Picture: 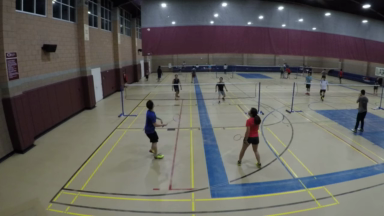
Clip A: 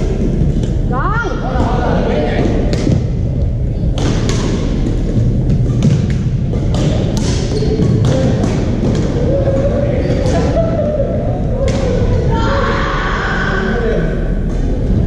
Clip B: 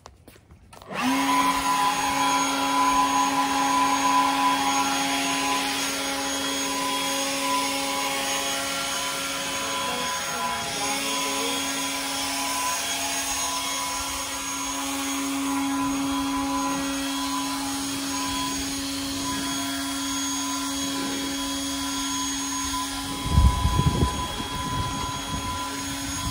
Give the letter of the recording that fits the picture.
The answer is A